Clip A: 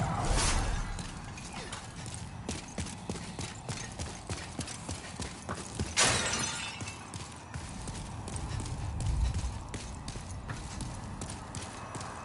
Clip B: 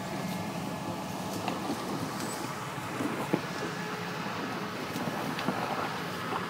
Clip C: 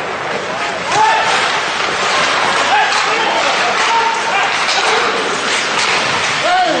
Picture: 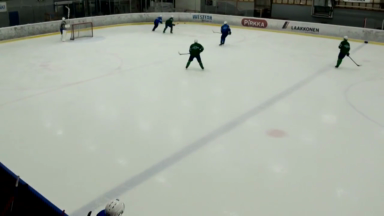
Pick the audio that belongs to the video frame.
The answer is C